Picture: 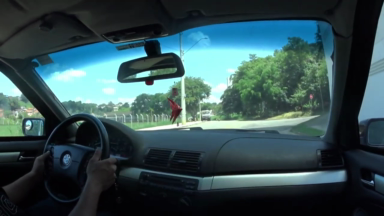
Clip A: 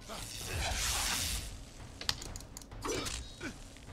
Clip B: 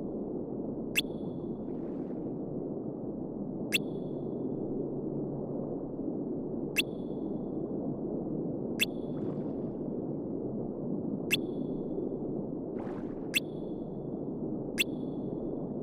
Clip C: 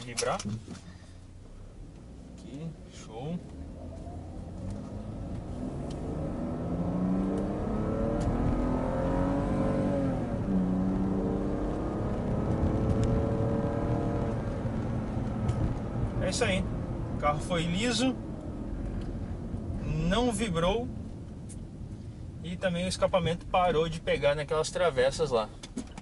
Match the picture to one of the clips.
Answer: C